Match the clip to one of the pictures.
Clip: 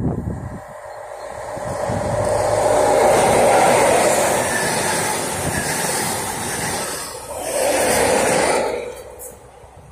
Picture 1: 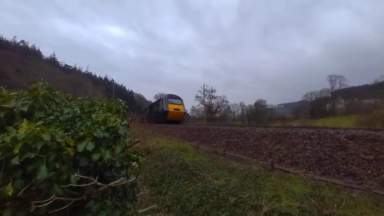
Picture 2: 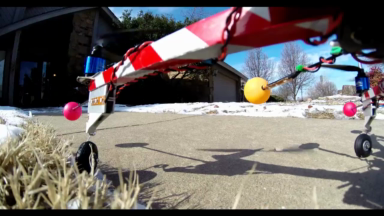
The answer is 1